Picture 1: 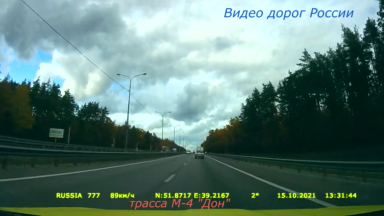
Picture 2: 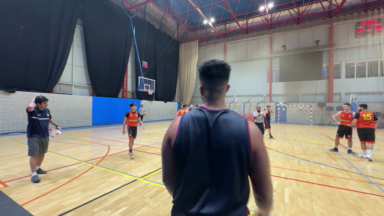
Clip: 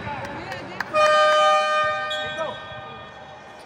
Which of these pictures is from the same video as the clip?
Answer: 2